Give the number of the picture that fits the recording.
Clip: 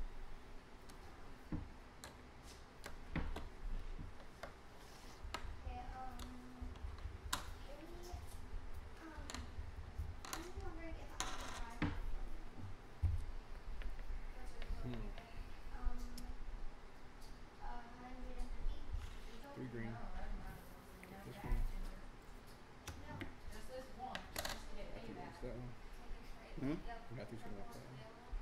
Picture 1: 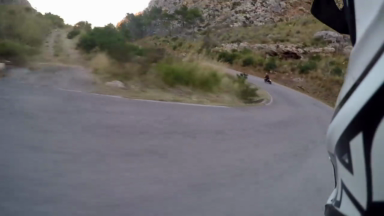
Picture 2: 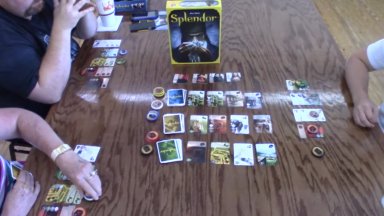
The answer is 2